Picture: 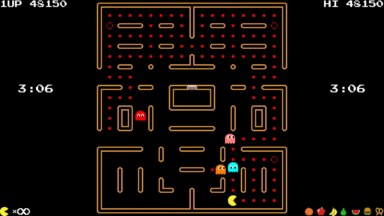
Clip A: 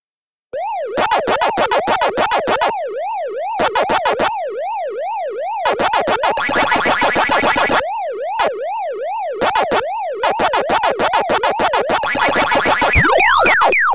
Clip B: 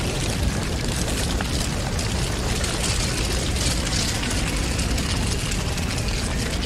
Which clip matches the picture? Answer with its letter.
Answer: A